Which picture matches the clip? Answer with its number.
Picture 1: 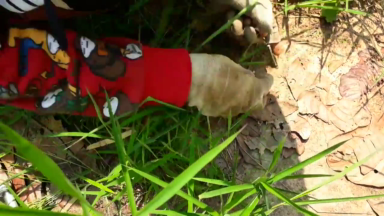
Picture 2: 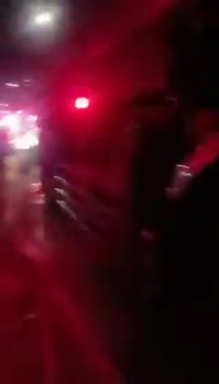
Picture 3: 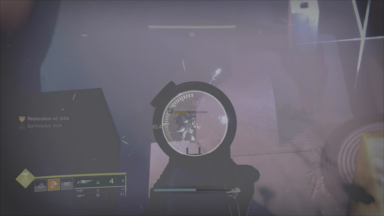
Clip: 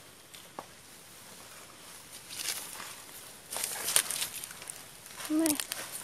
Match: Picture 1